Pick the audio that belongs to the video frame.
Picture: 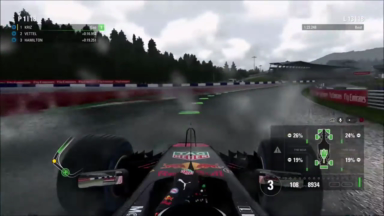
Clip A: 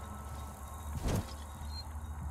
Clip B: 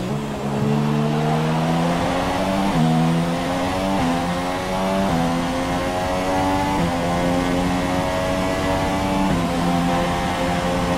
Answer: B